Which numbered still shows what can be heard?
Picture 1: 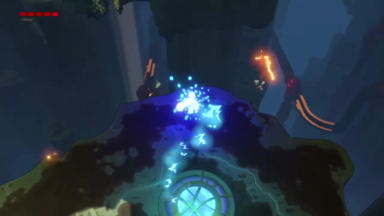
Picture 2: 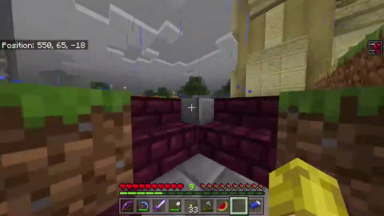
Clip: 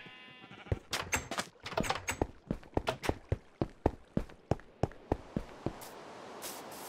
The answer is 2